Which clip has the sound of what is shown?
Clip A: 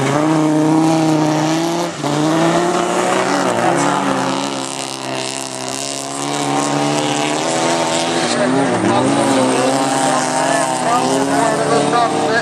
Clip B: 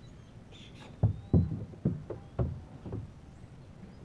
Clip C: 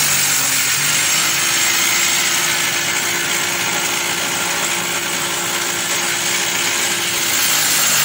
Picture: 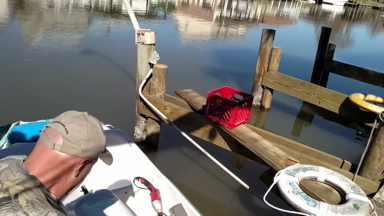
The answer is B